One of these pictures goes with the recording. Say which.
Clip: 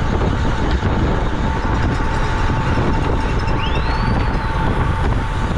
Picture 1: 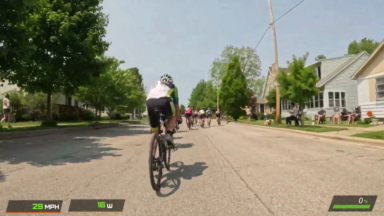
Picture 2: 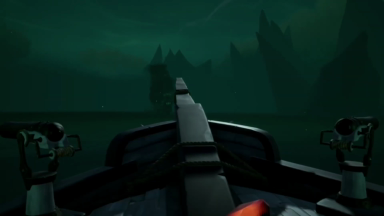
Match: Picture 1